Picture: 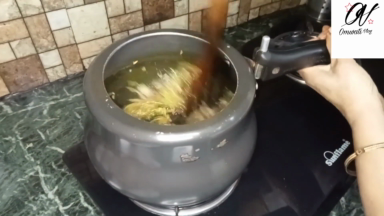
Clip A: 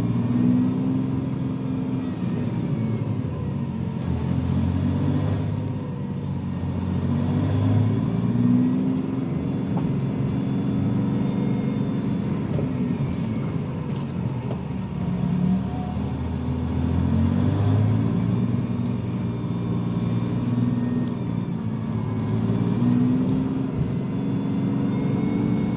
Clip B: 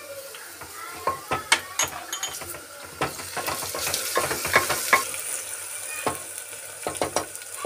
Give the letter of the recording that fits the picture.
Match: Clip B